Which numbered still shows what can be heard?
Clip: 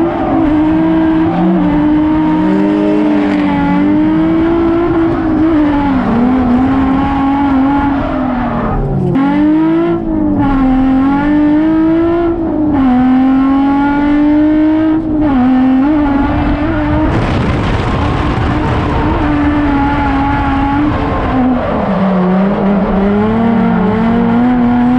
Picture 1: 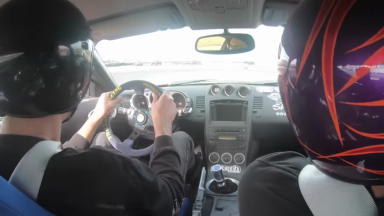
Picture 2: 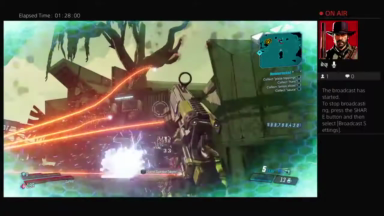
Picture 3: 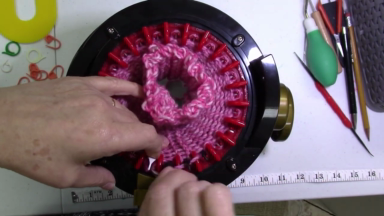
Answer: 1